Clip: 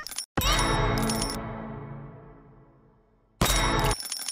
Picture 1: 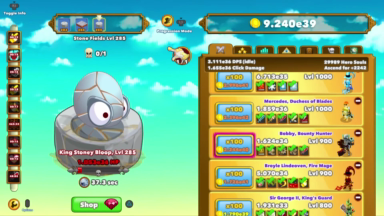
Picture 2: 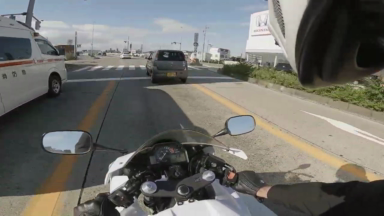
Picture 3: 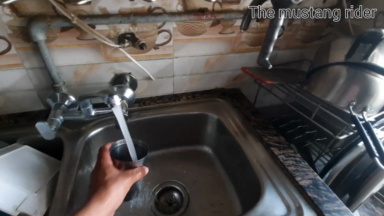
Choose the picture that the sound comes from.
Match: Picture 1